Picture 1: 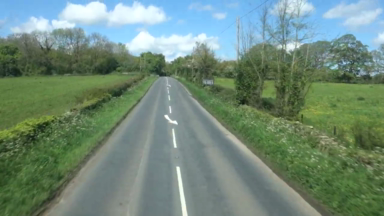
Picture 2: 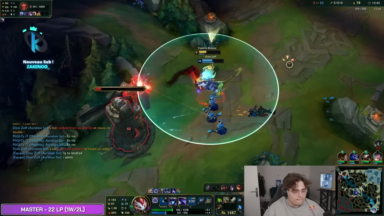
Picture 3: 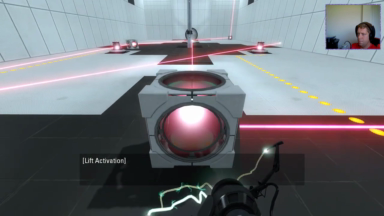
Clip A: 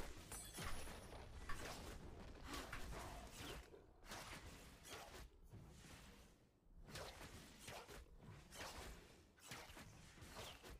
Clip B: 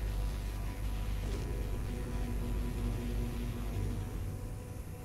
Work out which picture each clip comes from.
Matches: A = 2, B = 3